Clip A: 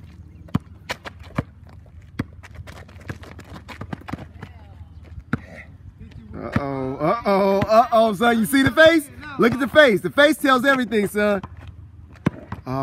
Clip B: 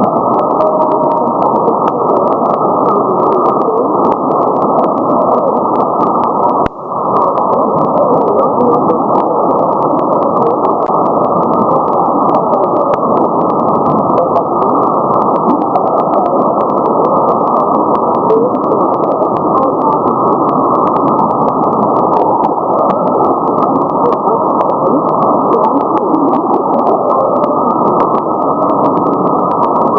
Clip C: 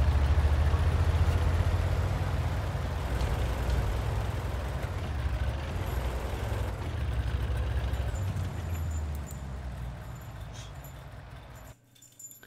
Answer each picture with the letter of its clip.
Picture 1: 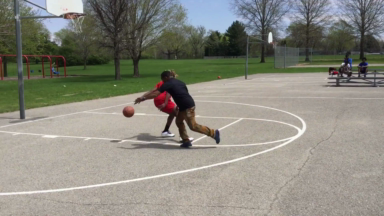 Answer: A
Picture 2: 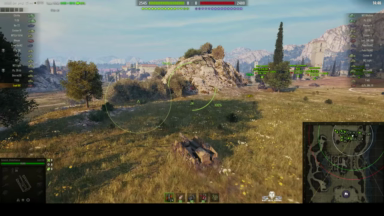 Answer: C